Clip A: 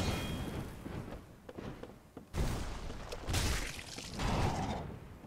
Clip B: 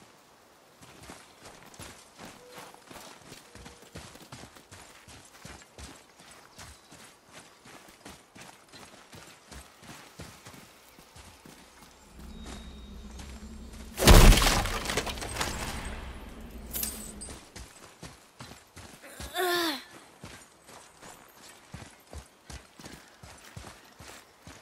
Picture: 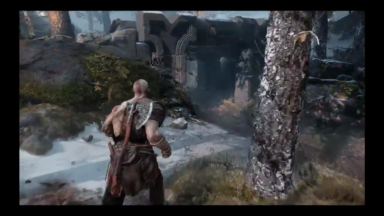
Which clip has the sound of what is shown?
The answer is B